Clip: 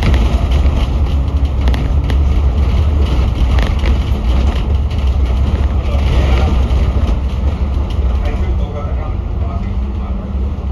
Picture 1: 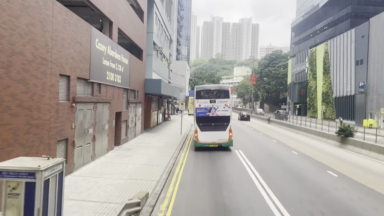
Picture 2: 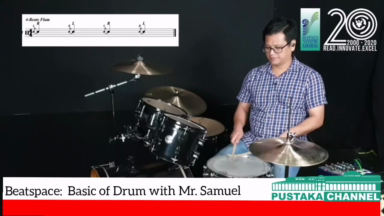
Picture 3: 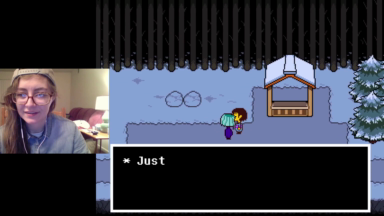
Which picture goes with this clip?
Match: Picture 1